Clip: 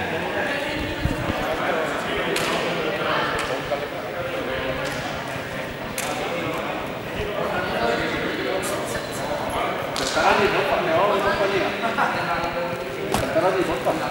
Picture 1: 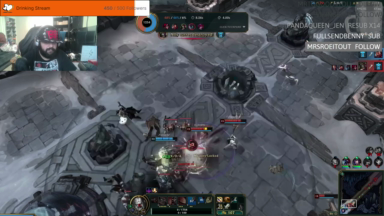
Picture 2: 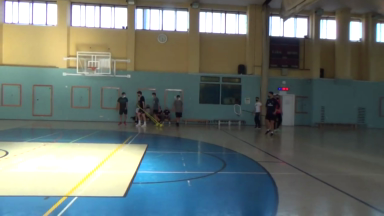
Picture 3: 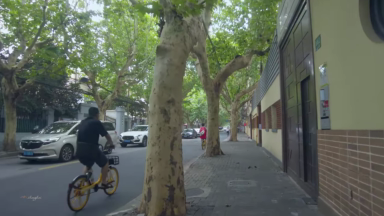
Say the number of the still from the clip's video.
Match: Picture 2